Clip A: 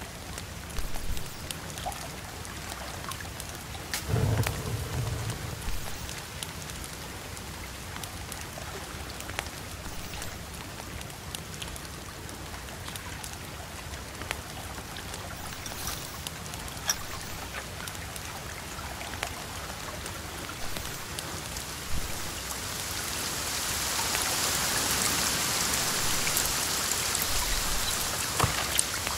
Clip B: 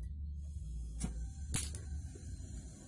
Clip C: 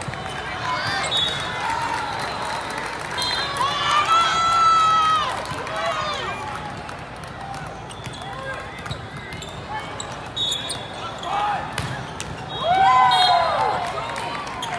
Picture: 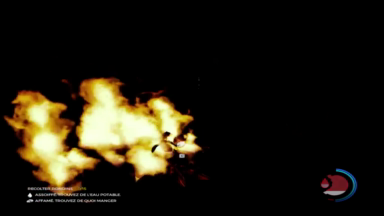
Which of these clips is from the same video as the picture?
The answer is A